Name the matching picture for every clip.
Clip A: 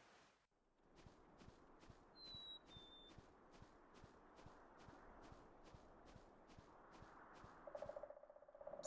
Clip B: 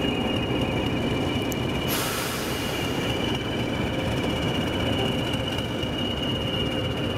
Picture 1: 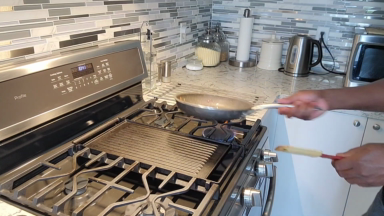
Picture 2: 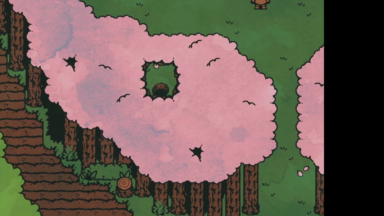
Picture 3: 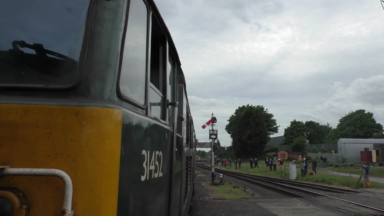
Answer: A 2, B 3